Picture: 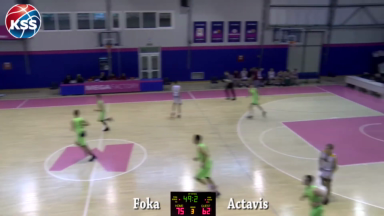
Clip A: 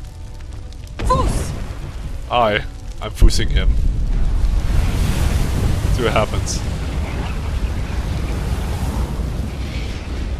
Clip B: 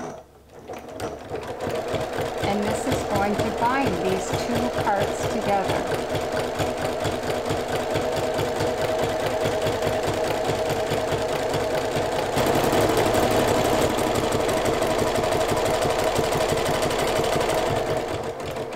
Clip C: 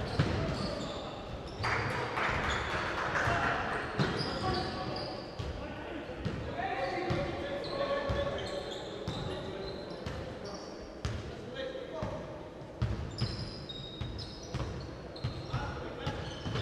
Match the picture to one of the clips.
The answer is C